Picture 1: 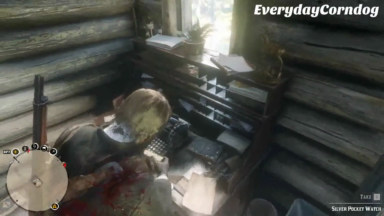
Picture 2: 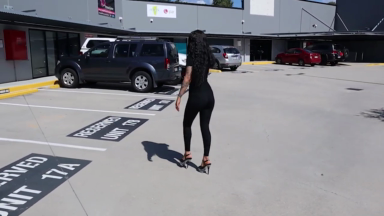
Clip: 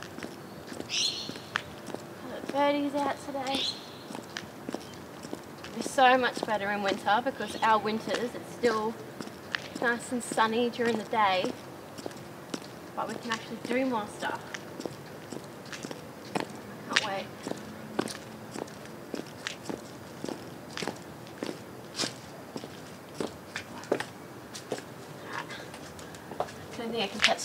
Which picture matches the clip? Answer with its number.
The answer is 2